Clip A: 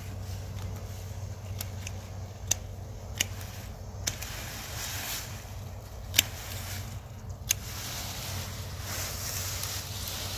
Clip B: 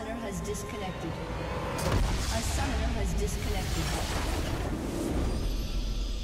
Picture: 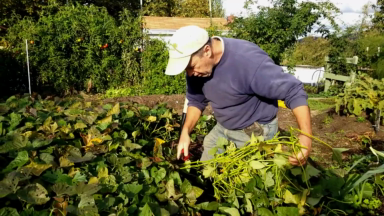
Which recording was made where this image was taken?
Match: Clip A